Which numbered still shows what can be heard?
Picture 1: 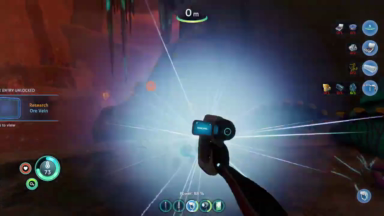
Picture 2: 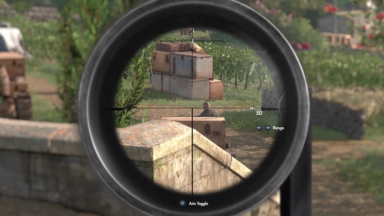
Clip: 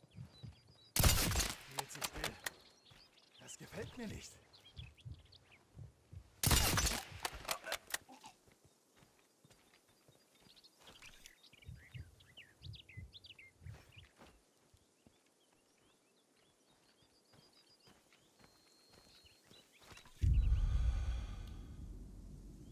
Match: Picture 2